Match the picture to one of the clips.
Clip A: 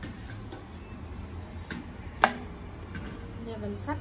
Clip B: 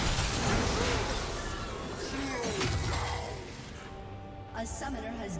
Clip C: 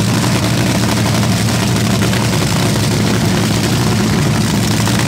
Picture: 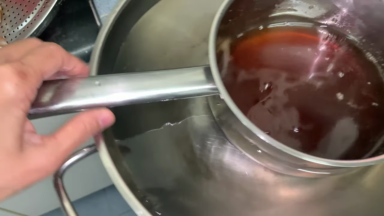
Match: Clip A